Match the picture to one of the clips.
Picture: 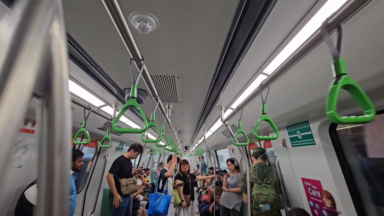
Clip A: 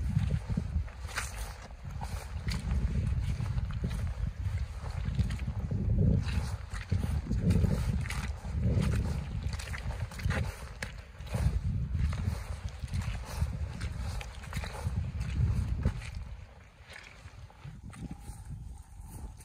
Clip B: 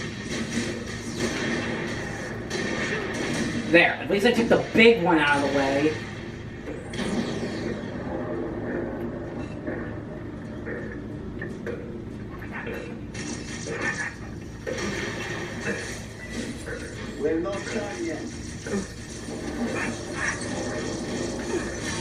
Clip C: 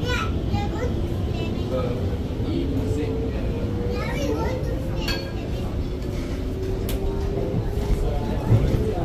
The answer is C